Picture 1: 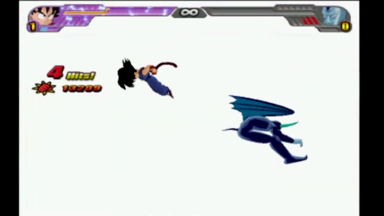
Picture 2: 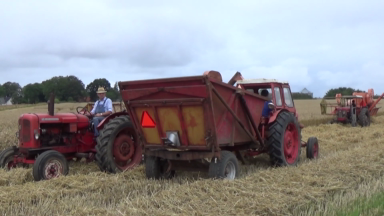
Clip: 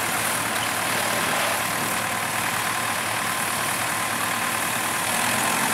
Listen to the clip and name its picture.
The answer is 2